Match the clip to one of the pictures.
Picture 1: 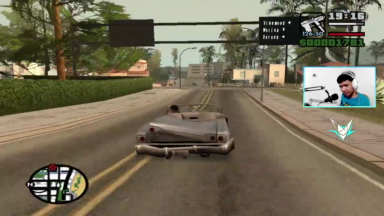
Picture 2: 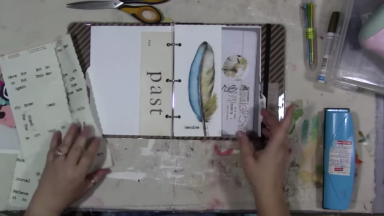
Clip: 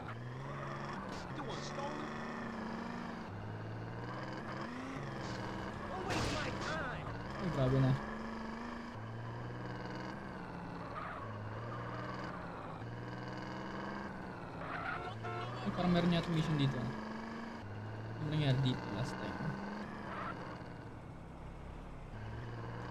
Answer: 1